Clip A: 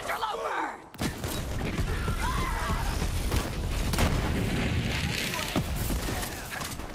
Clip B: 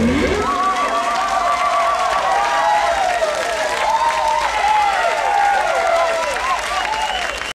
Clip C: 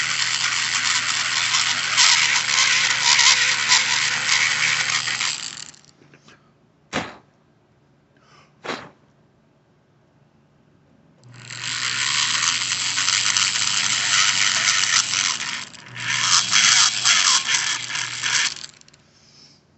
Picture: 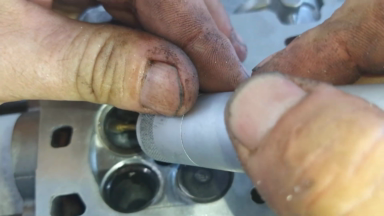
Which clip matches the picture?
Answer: C